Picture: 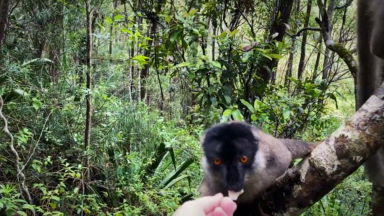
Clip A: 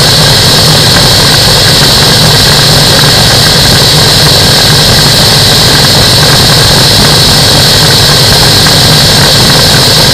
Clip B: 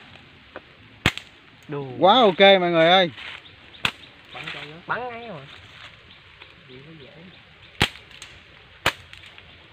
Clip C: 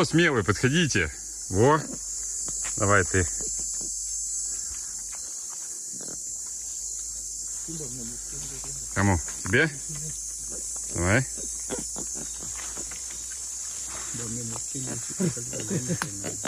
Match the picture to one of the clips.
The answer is C